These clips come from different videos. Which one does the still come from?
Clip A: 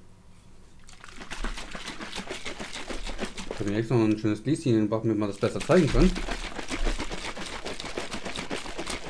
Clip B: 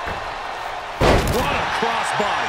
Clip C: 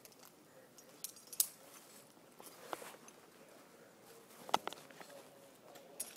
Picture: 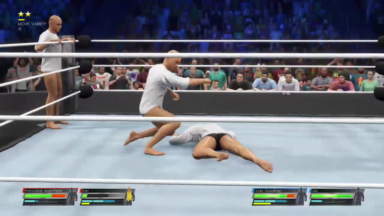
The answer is B